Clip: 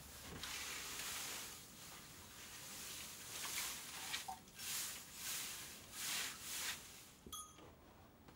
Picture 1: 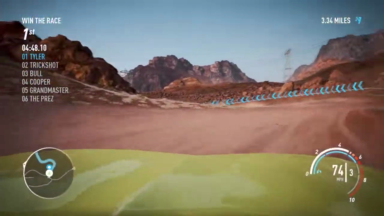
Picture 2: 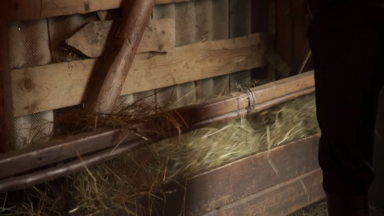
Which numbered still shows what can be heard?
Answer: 2